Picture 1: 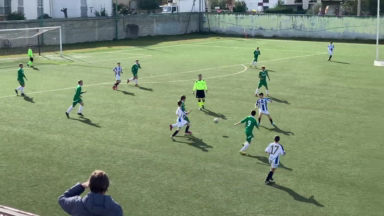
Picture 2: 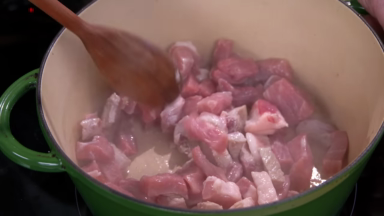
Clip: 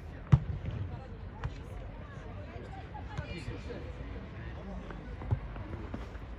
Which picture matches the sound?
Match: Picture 1